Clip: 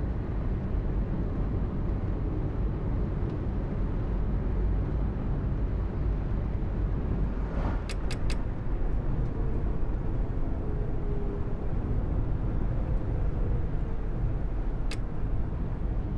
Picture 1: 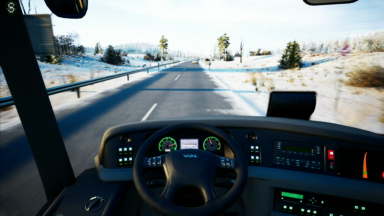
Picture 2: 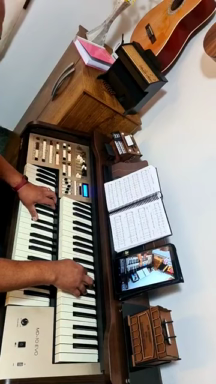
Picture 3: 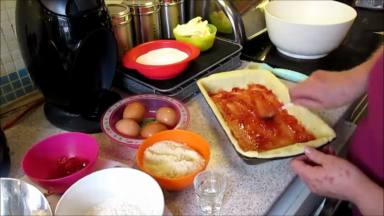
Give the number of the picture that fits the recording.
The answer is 1